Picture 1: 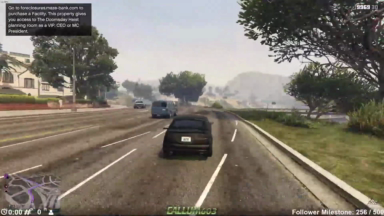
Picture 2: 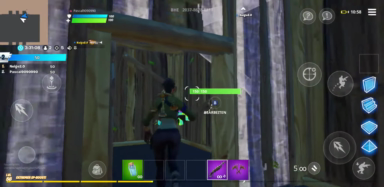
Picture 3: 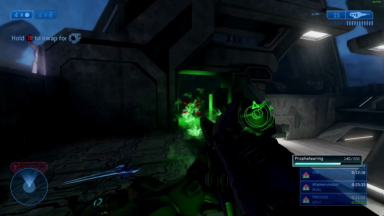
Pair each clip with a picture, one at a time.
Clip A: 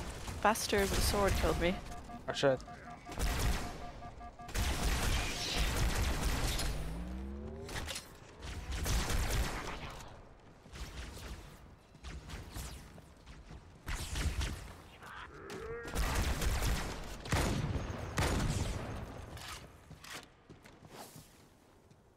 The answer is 3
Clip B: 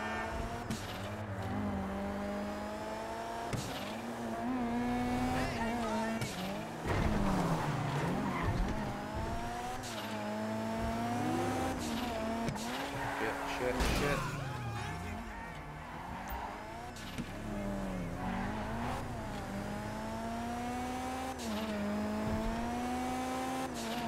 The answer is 1